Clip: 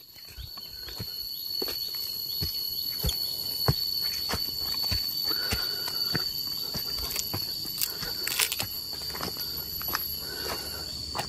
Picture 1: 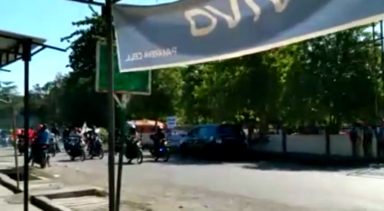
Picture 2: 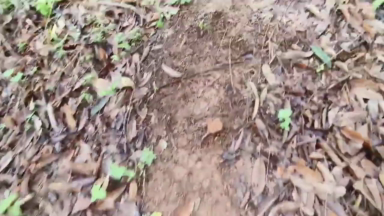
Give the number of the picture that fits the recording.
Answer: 2